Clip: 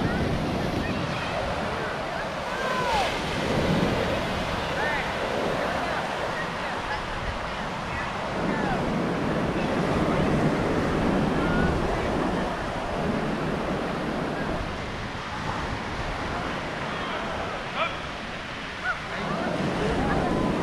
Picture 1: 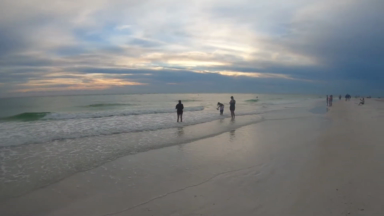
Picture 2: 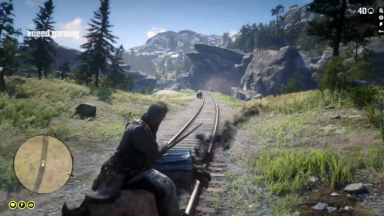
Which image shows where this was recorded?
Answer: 1